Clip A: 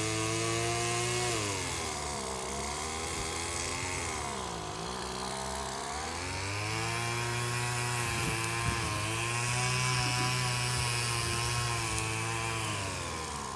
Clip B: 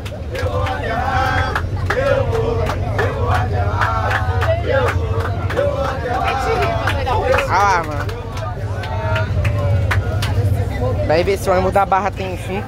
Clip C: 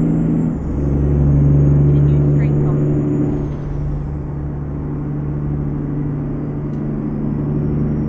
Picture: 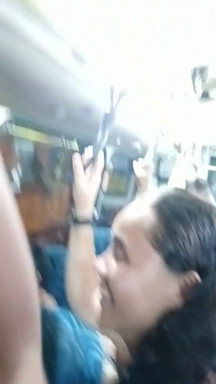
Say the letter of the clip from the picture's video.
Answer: B